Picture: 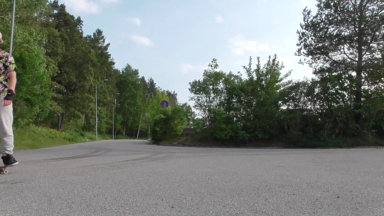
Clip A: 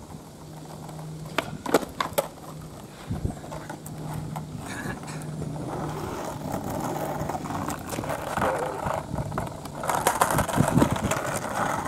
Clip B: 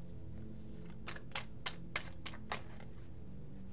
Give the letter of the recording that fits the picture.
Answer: A